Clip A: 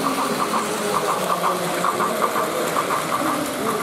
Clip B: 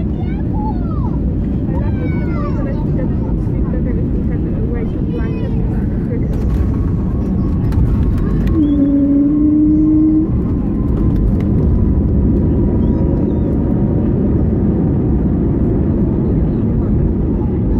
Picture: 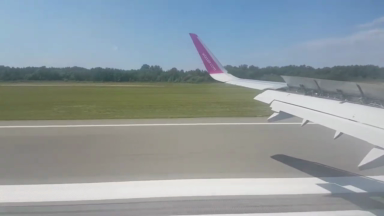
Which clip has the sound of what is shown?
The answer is B